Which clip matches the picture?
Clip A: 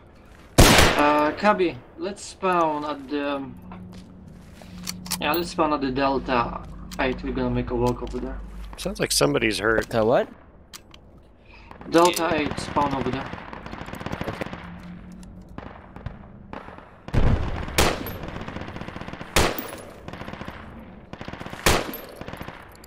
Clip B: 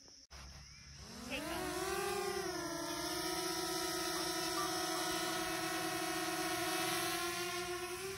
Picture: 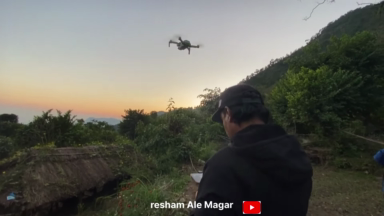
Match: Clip B